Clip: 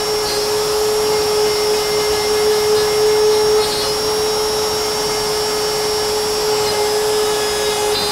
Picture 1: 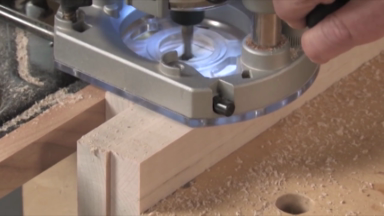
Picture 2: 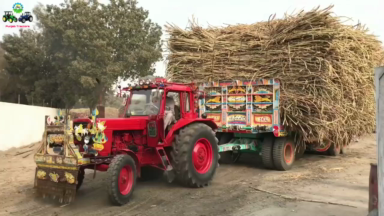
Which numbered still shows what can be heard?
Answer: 1